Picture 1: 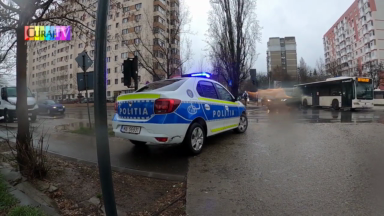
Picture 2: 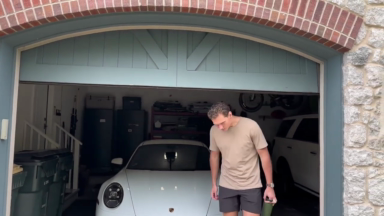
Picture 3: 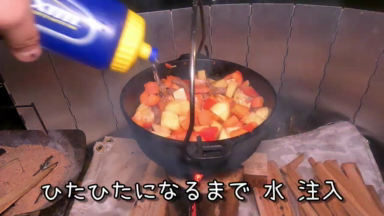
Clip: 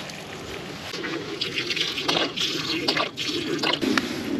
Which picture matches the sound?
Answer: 3